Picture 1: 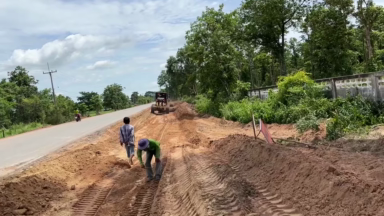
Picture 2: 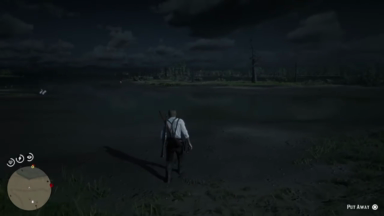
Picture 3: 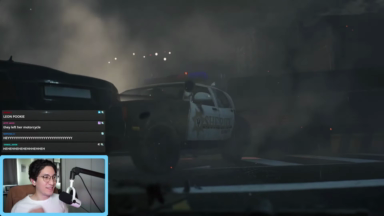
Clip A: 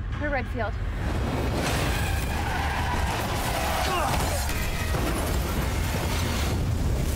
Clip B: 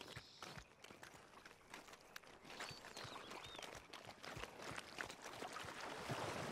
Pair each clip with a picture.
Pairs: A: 3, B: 2